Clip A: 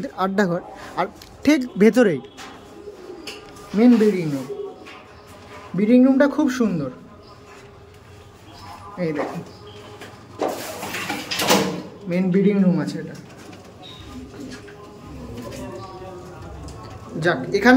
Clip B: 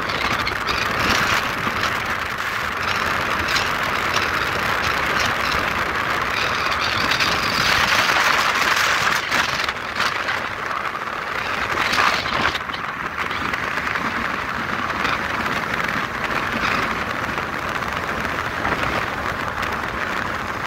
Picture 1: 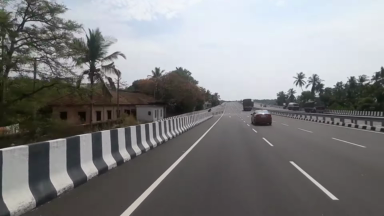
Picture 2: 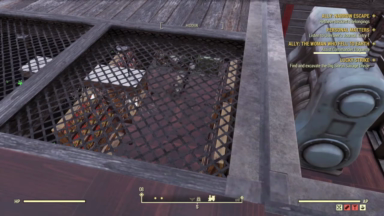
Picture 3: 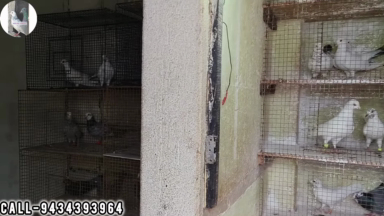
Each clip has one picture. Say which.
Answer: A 3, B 1